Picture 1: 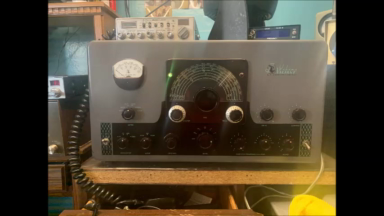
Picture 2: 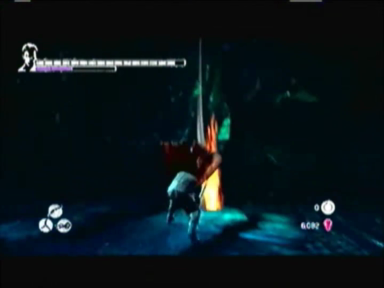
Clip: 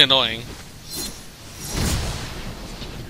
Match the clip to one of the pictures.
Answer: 2